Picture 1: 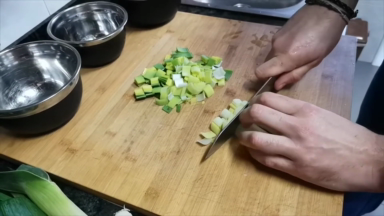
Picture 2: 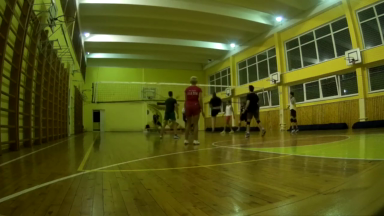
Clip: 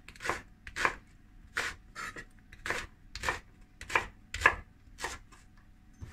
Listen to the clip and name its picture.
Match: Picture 1